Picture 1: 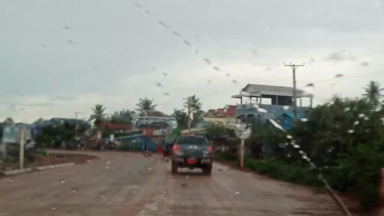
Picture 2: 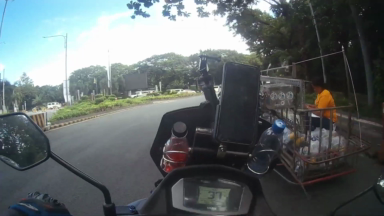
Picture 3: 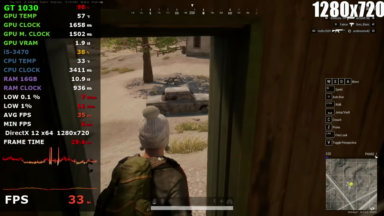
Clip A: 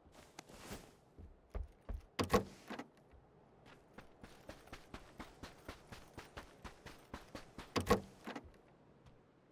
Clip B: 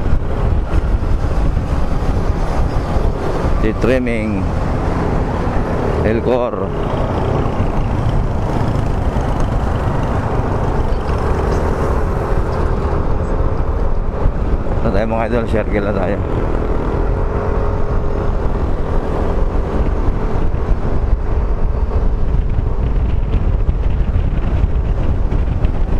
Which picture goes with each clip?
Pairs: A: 3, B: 2